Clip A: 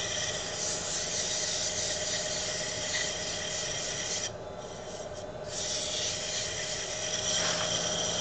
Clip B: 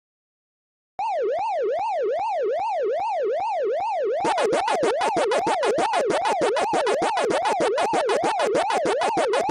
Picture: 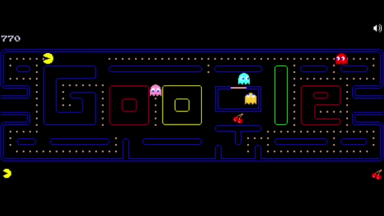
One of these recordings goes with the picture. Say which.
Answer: B